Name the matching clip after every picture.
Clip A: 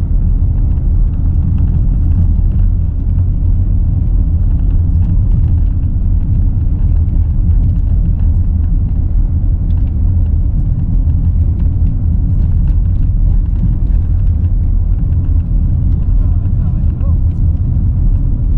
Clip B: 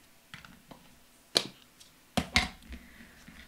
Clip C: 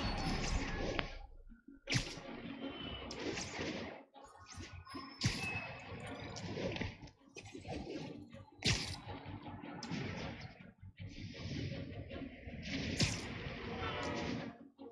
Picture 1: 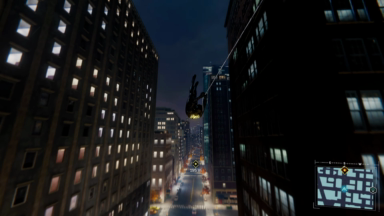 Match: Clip C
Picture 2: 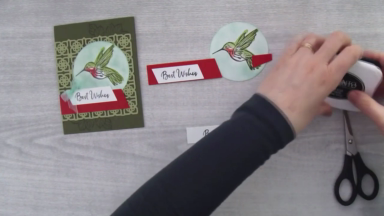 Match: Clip B